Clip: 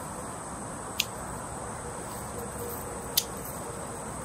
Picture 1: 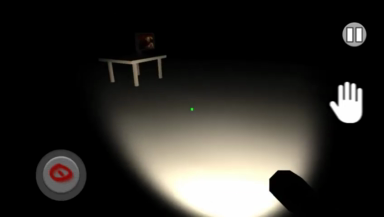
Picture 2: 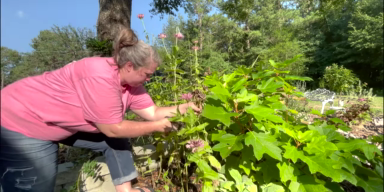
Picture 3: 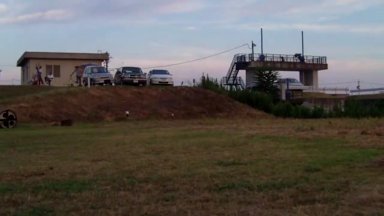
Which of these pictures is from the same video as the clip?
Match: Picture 2